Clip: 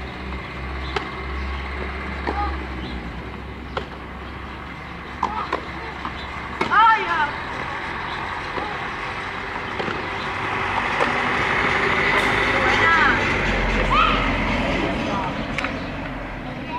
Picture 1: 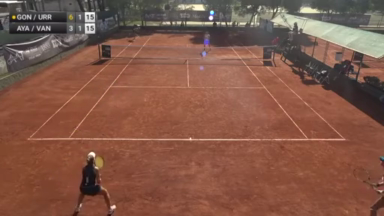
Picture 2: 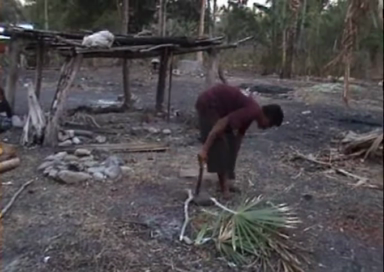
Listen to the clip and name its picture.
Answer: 1